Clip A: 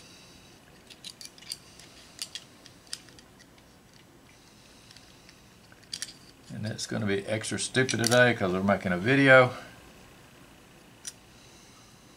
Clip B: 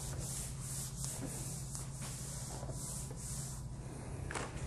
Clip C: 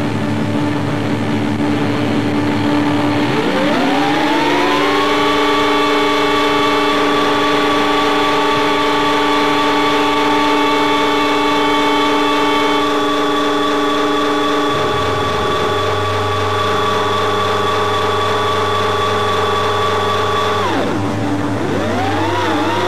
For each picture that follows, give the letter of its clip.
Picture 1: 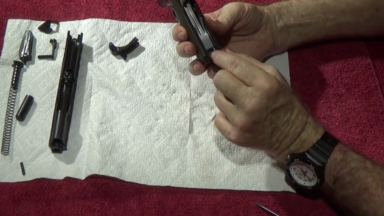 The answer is A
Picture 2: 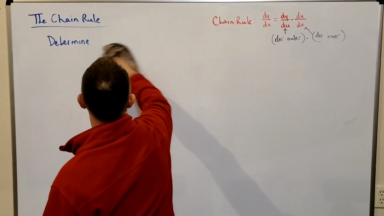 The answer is B